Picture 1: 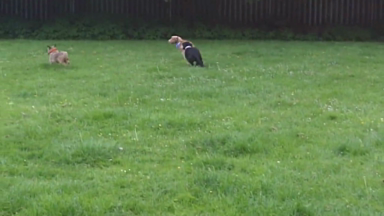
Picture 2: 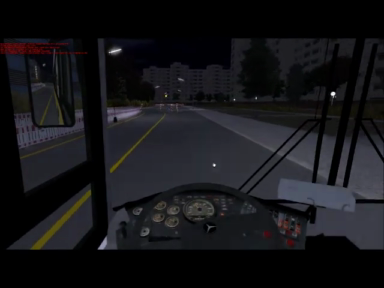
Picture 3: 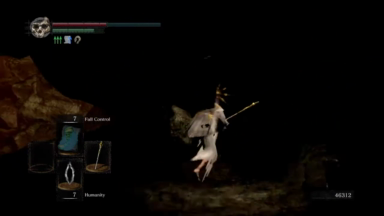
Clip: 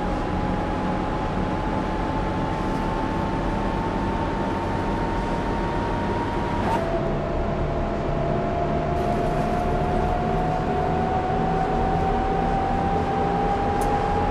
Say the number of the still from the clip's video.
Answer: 2